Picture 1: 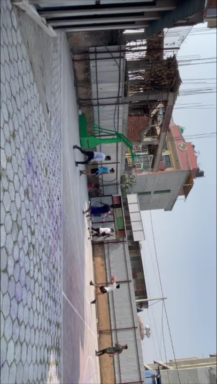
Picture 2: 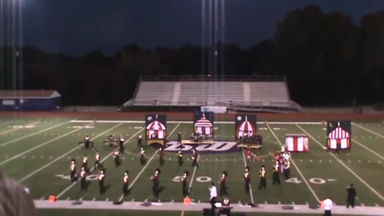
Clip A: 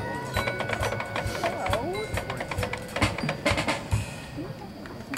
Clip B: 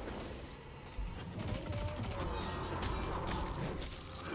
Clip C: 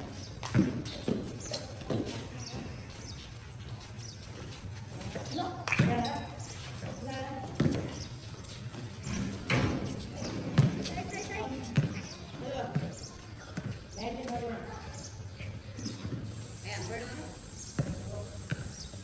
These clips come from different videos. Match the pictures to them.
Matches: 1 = C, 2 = A